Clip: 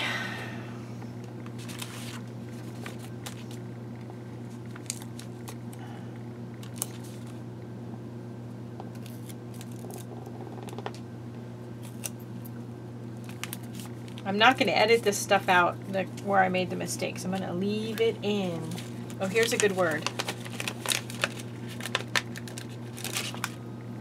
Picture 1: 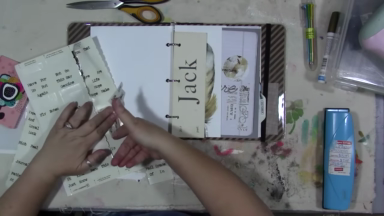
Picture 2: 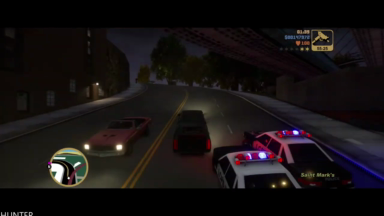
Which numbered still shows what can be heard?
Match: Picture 1